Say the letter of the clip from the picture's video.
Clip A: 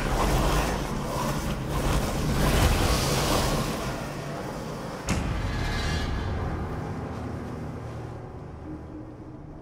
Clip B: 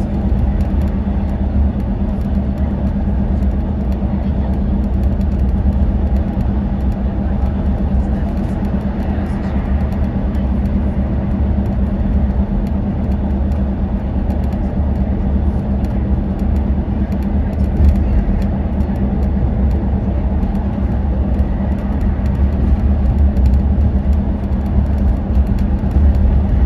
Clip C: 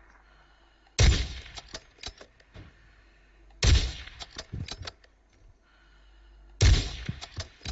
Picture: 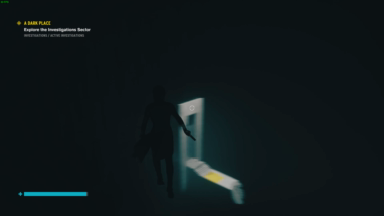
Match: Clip A